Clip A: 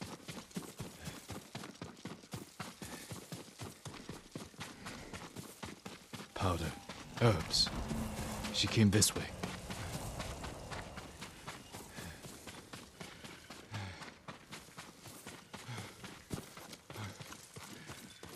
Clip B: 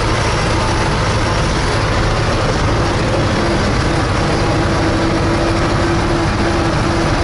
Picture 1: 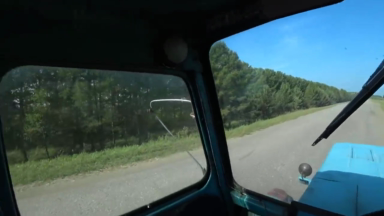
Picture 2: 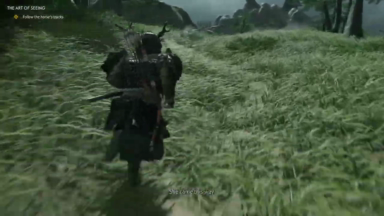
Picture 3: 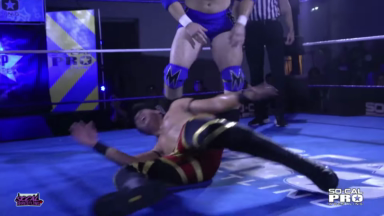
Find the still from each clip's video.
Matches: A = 2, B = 1